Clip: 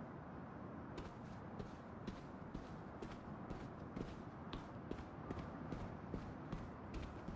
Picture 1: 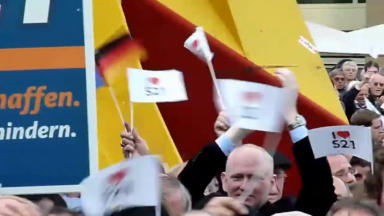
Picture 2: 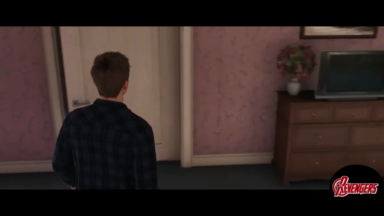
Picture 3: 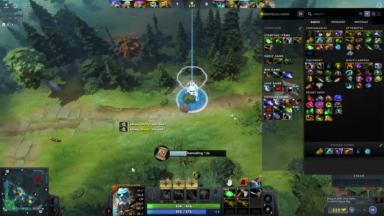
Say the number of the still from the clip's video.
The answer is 2